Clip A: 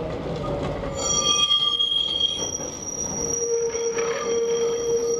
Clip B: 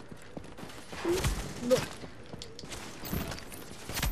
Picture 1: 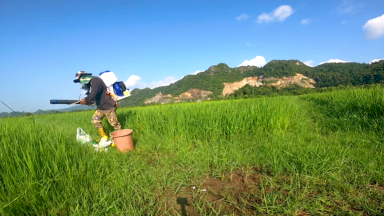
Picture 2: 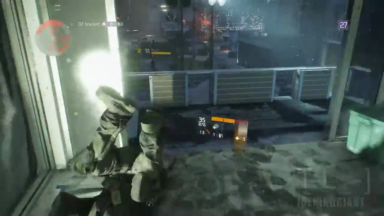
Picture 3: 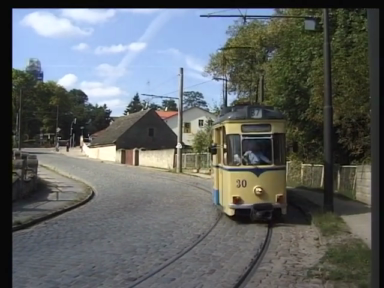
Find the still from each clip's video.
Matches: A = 3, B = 2